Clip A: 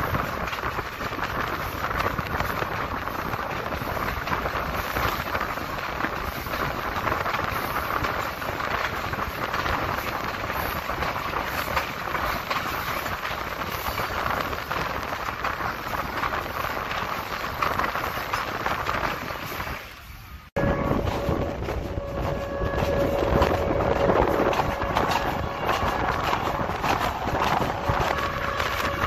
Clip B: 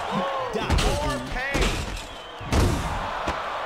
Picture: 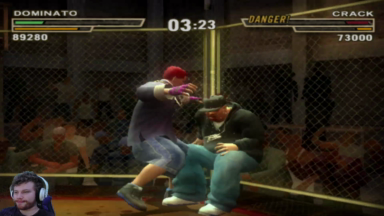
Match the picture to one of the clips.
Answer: B